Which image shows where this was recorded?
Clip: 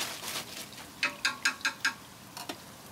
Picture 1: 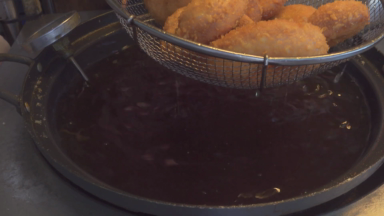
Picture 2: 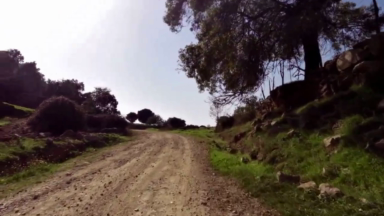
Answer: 1